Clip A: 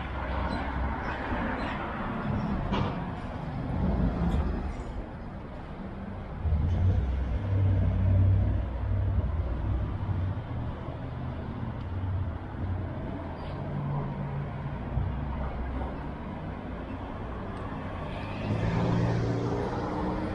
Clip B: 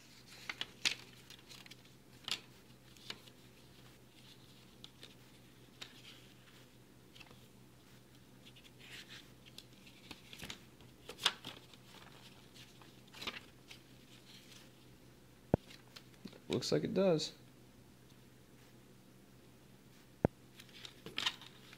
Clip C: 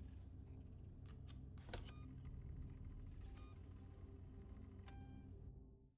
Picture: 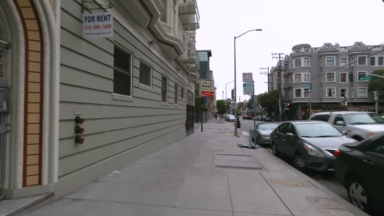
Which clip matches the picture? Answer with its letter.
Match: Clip A